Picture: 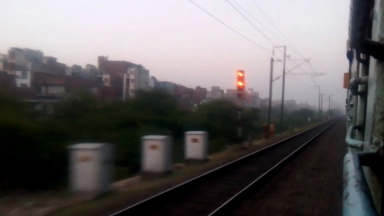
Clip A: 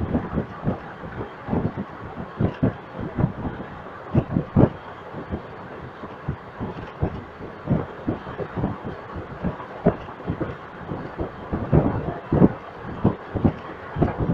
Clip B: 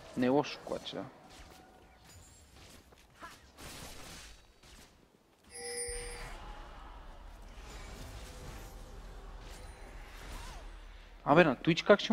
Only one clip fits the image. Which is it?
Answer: A